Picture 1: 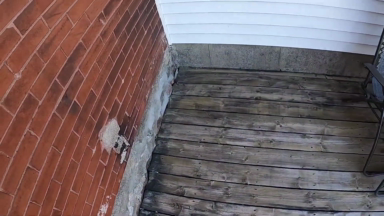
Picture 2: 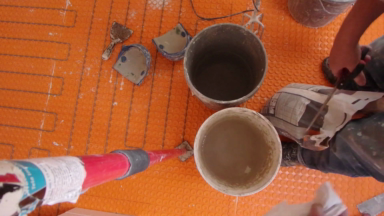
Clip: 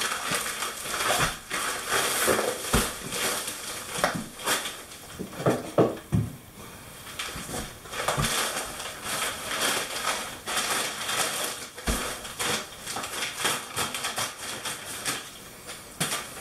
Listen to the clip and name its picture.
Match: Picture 2